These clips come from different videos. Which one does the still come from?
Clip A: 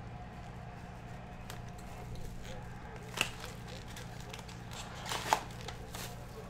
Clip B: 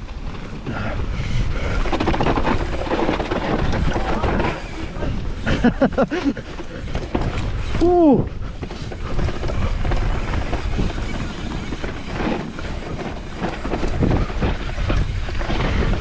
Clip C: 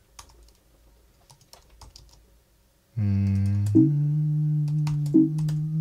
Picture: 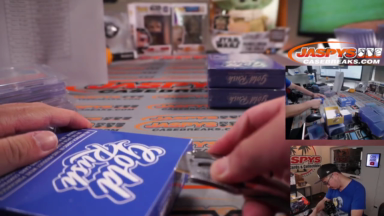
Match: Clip A